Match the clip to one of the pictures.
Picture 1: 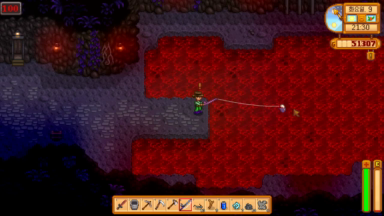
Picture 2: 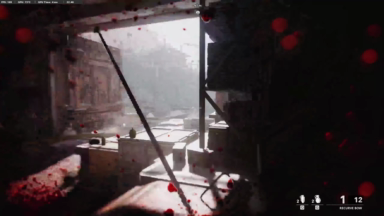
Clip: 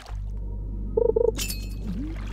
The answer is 1